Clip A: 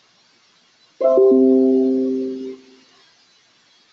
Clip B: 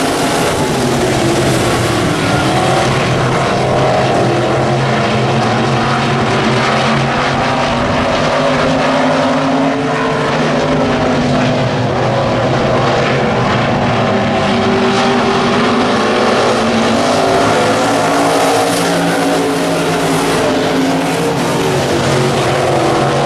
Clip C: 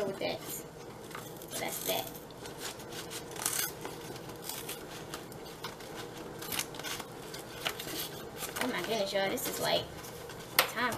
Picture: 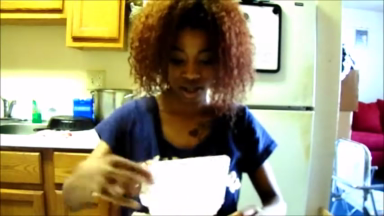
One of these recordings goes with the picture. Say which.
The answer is C